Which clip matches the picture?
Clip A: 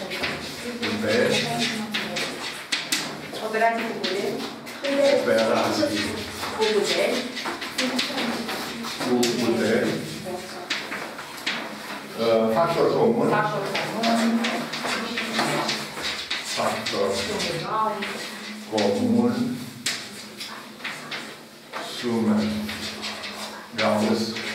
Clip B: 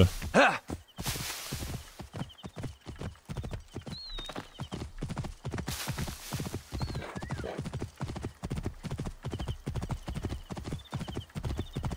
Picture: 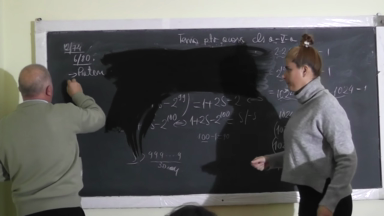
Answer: A